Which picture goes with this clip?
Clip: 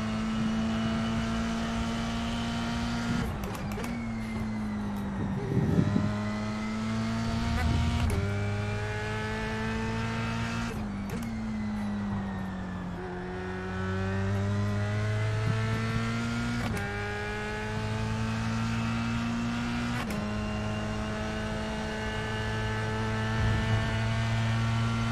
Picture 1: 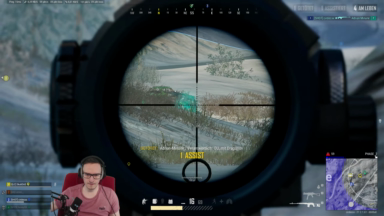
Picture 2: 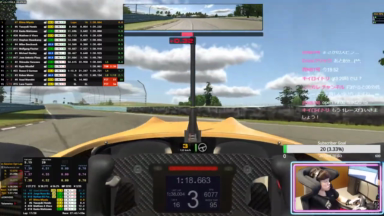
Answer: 2